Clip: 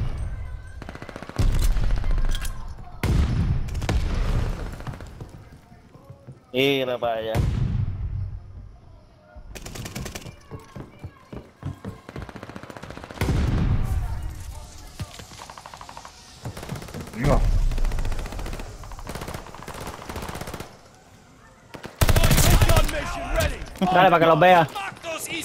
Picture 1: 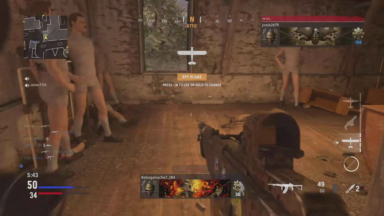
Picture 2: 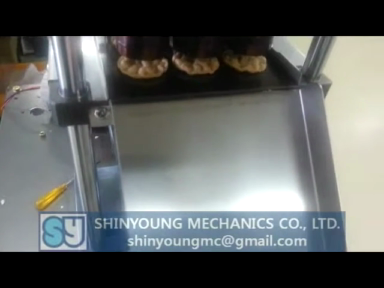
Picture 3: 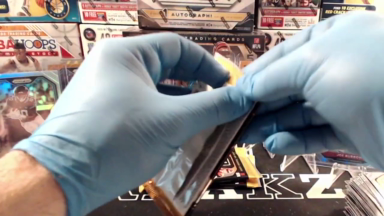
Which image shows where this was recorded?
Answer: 1